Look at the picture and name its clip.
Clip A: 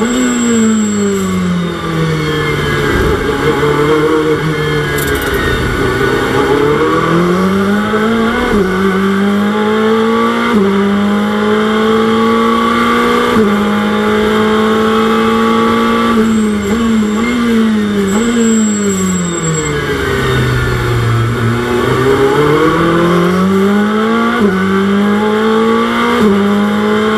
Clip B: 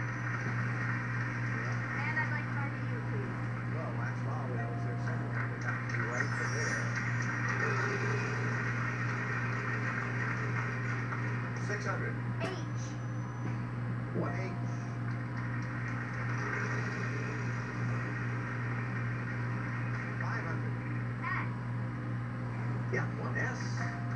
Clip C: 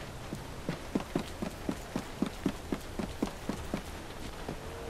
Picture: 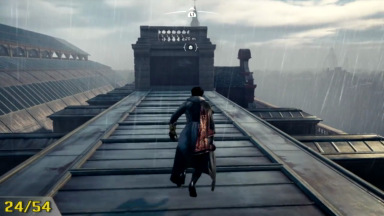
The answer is C